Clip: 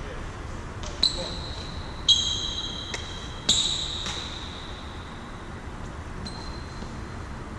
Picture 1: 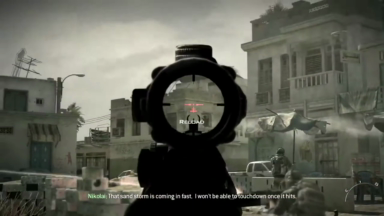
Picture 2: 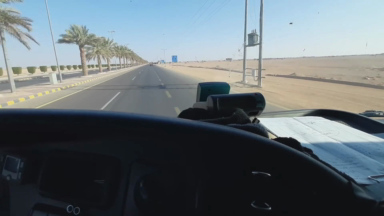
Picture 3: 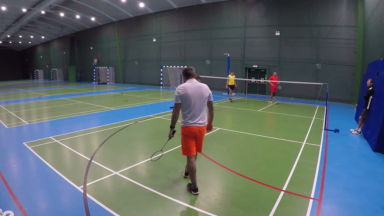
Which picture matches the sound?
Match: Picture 3